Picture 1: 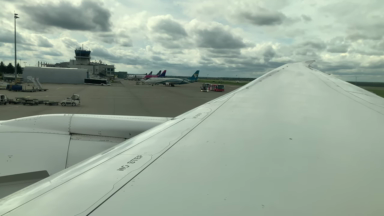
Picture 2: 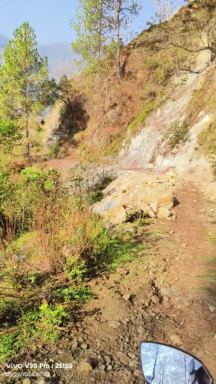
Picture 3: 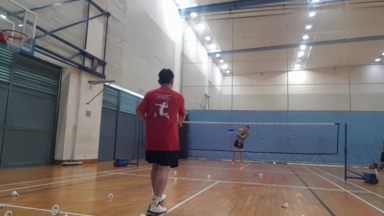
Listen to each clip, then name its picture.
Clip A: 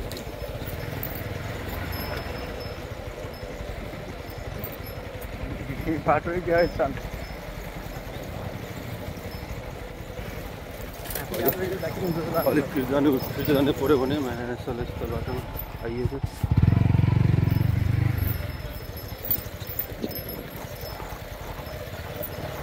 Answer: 2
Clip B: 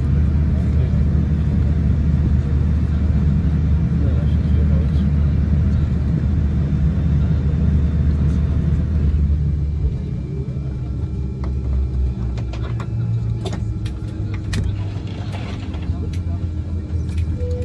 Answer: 1